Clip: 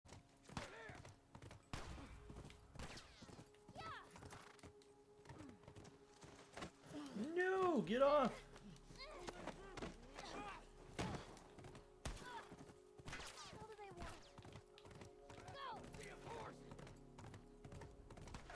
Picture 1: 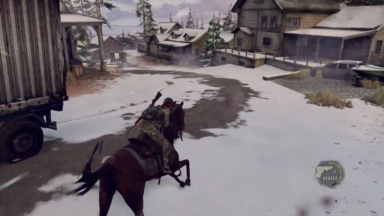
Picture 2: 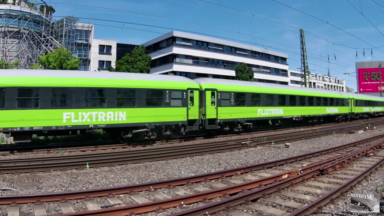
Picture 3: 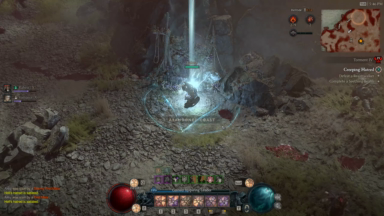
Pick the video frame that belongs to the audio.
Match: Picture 1